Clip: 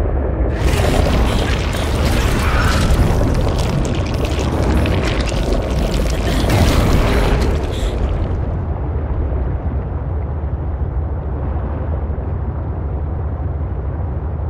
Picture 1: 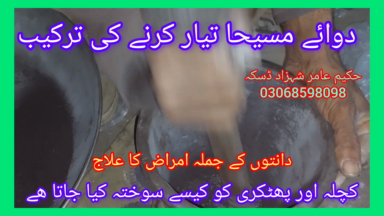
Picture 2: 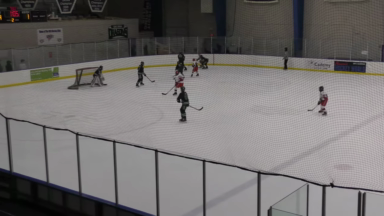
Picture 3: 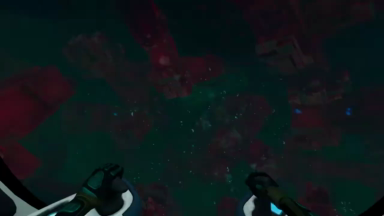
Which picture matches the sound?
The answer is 3